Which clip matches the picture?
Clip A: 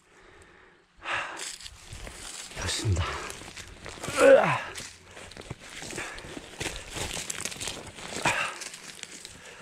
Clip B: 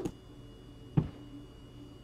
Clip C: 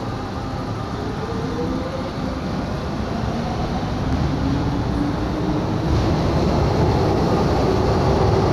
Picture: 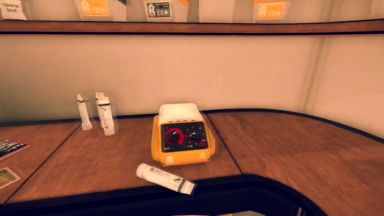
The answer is B